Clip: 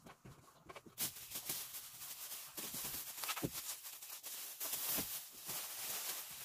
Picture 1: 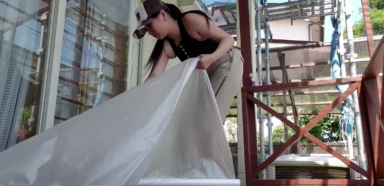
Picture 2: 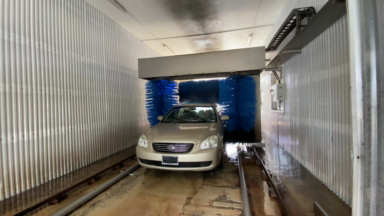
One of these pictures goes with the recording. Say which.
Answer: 1